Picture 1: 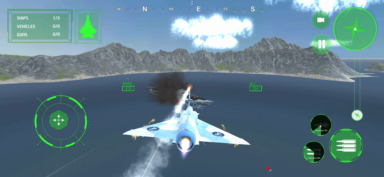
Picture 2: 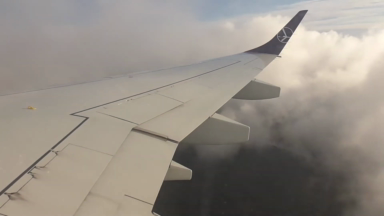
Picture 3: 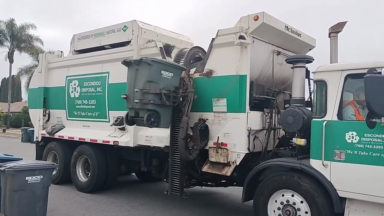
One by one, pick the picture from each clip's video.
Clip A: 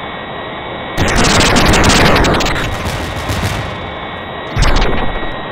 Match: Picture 1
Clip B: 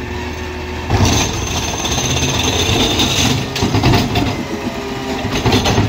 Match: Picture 3